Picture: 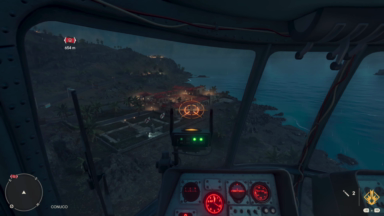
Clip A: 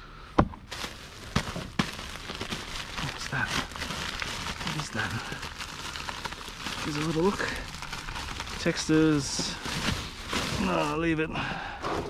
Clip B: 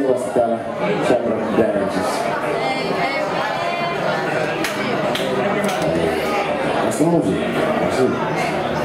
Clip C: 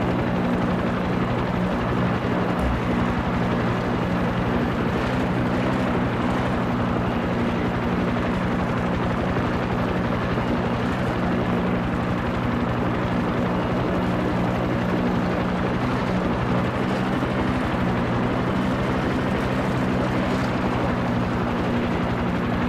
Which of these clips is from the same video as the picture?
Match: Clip C